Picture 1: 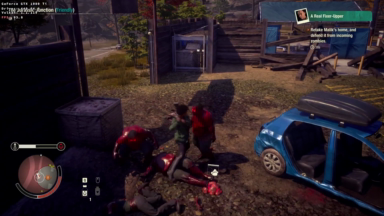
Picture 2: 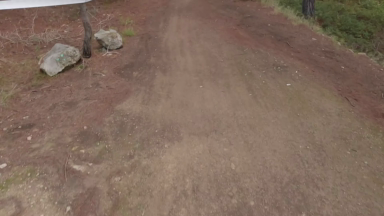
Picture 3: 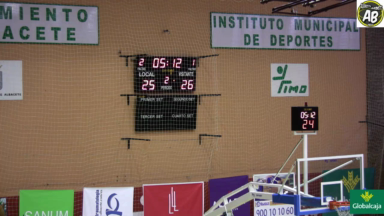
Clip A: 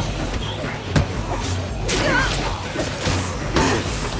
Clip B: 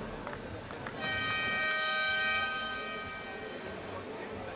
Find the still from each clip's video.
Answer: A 1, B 3